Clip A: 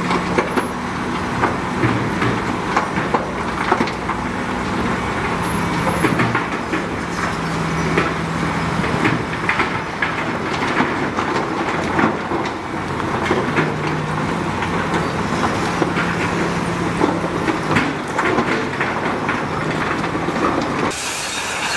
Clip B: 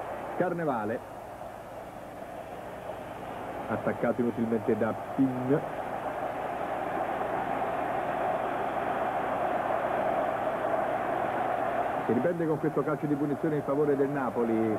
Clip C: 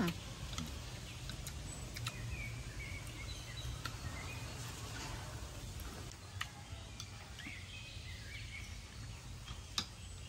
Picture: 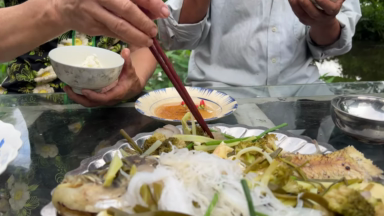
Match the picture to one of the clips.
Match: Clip C